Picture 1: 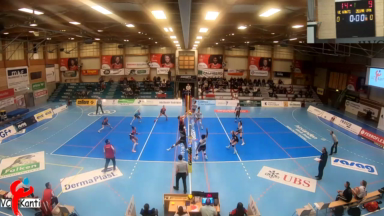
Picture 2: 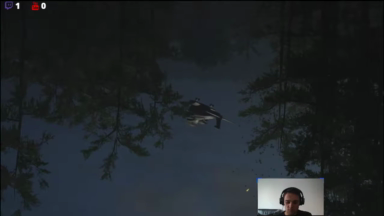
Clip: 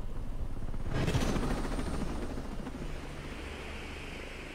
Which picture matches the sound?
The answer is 2